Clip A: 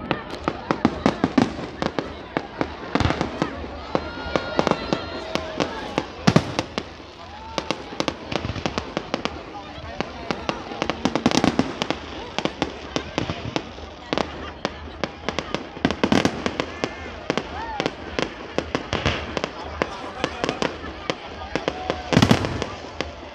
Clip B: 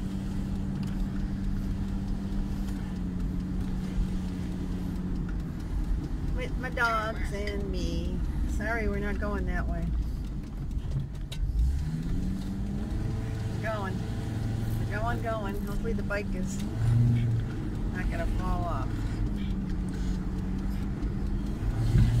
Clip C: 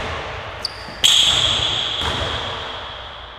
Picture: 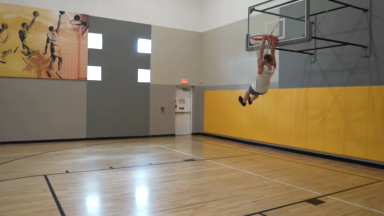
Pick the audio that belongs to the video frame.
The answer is C